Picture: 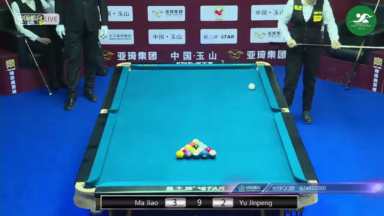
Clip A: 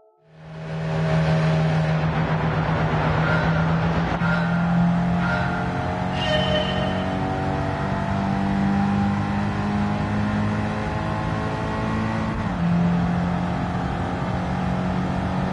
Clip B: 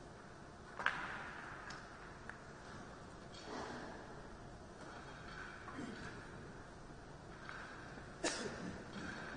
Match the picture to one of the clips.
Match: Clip B